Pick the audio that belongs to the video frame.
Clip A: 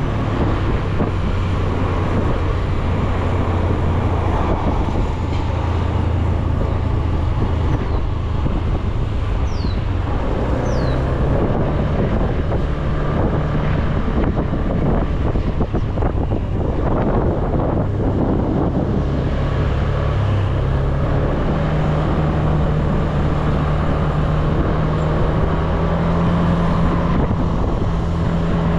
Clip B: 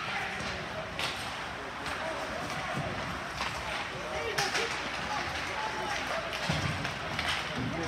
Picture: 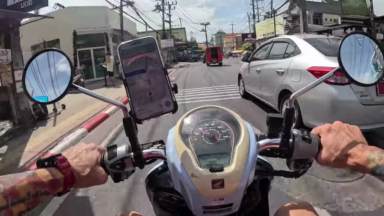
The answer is A